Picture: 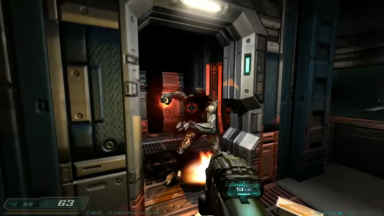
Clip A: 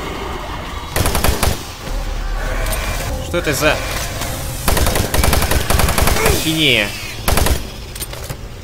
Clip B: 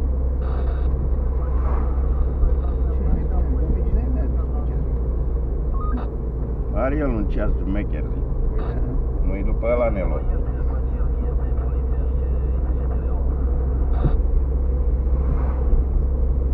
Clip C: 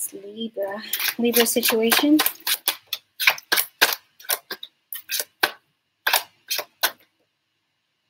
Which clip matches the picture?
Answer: A